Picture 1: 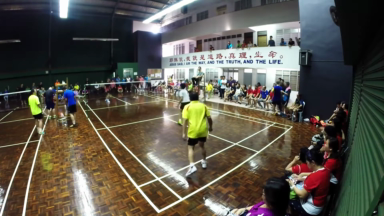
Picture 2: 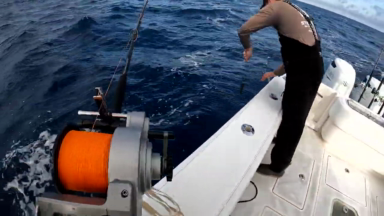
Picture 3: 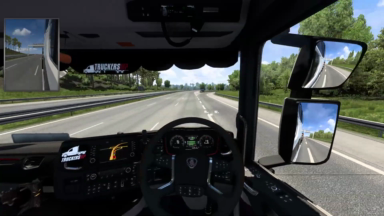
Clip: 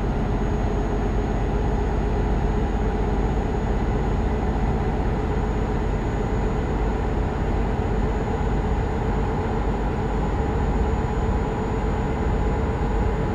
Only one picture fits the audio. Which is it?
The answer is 3